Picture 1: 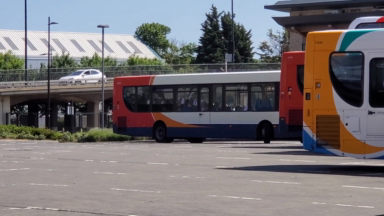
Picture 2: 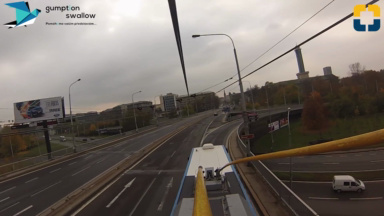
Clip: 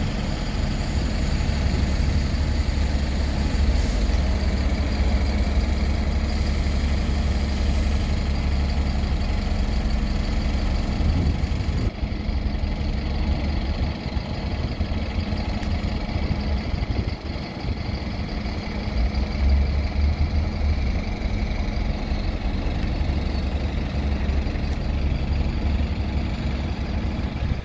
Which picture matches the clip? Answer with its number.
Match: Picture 1